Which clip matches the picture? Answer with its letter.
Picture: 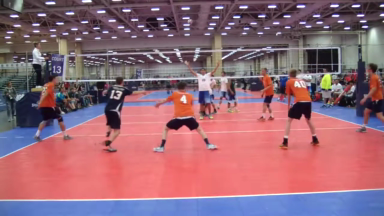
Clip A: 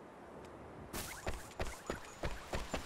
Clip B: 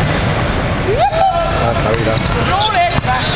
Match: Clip B